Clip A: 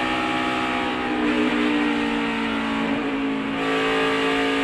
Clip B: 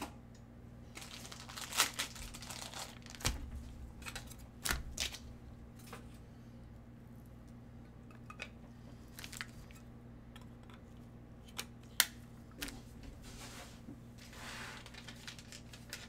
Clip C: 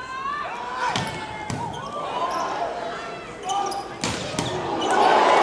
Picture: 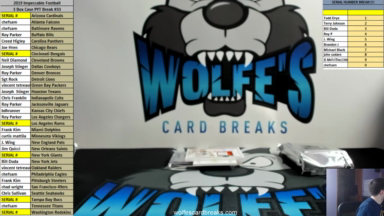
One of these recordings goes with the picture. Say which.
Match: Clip B